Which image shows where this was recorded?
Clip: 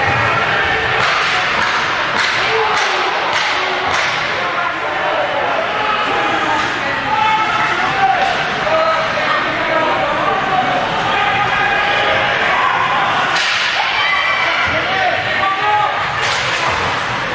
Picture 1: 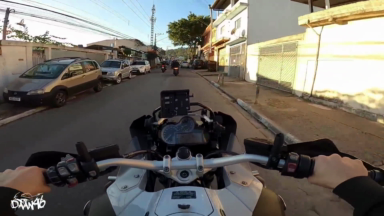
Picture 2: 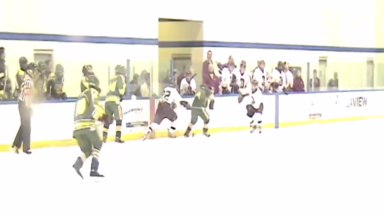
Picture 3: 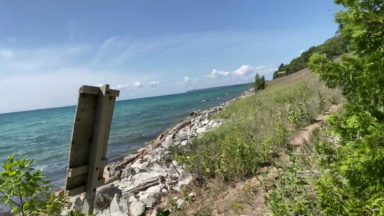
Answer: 2